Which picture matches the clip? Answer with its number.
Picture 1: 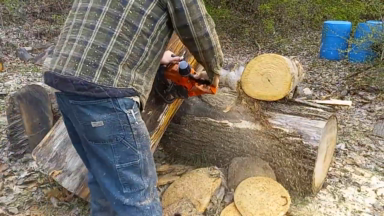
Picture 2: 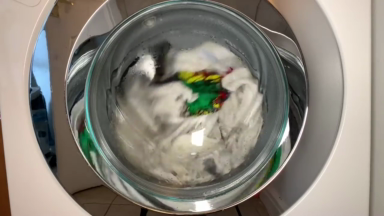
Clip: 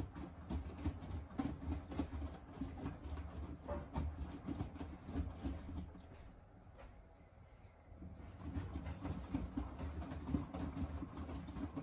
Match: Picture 2